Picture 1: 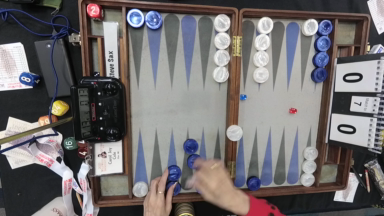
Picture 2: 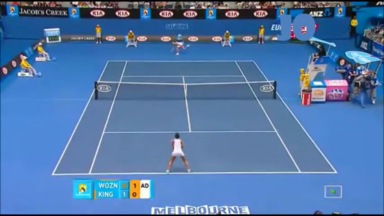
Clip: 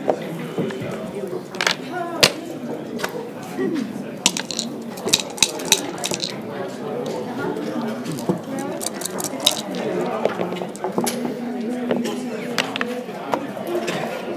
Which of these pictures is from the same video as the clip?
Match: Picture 1